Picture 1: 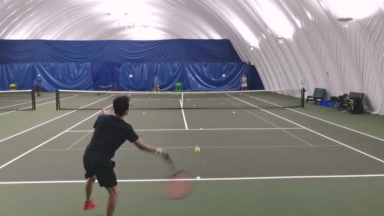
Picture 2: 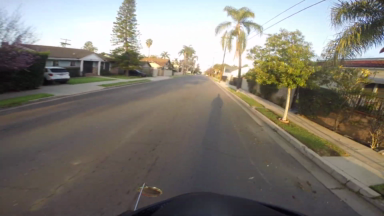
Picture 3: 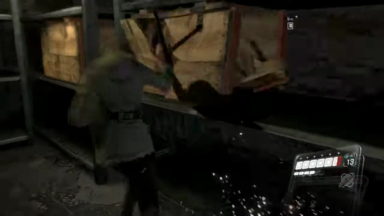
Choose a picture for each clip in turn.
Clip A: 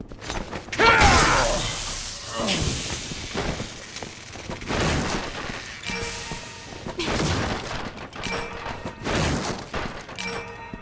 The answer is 3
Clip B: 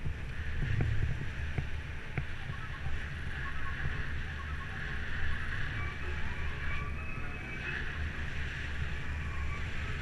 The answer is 2